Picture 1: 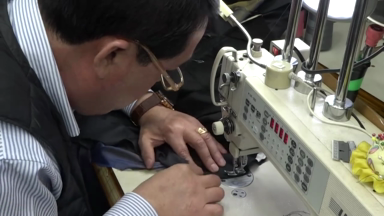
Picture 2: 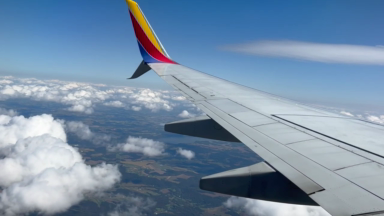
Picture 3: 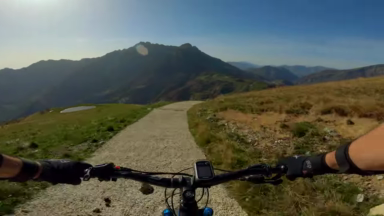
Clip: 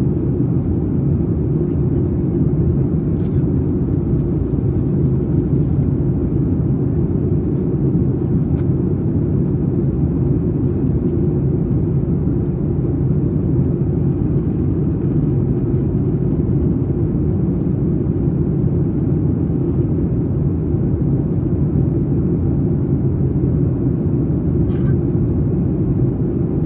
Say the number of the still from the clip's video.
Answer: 2